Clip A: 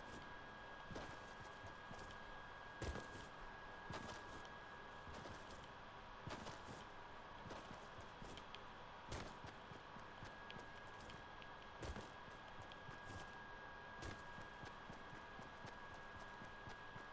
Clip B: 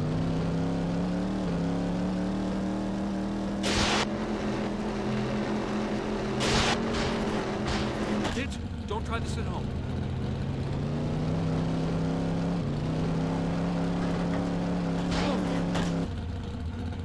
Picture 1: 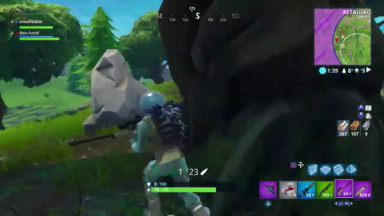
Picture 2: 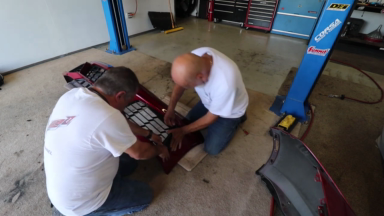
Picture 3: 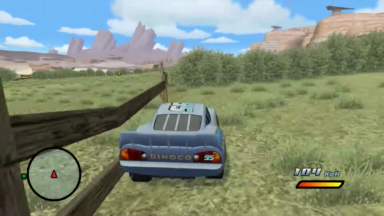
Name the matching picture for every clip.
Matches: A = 1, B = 3